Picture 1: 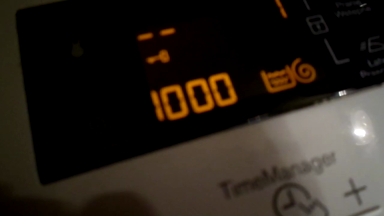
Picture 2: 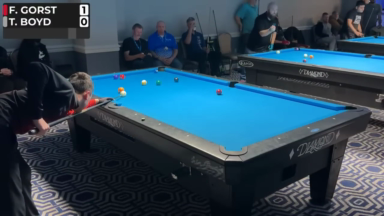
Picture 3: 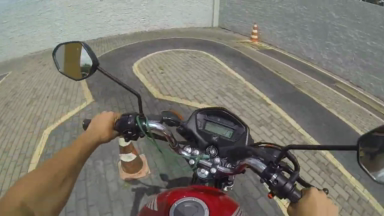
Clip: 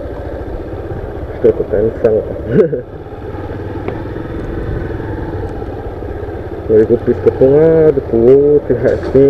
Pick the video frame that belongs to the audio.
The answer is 3